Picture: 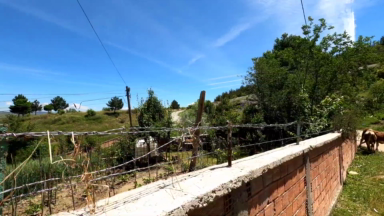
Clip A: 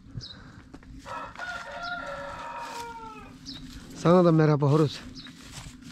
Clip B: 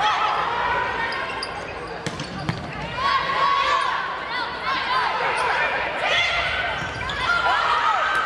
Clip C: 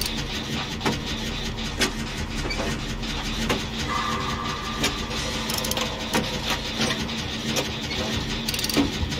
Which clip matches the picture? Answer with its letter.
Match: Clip A